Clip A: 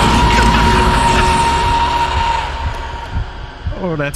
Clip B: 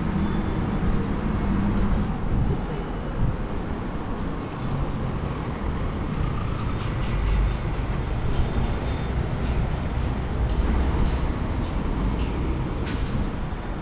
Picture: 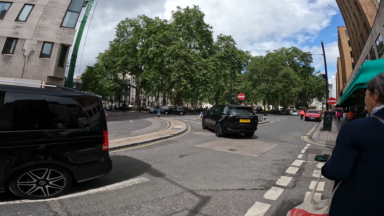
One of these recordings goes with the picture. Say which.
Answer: B